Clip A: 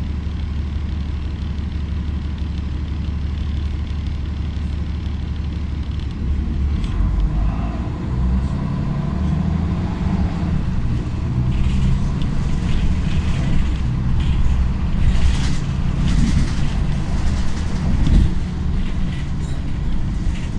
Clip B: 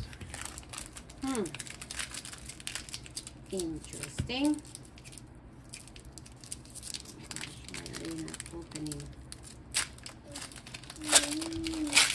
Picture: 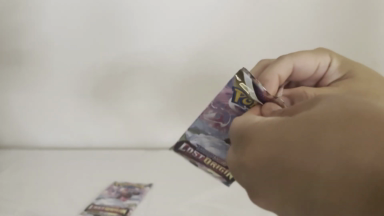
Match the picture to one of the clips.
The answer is B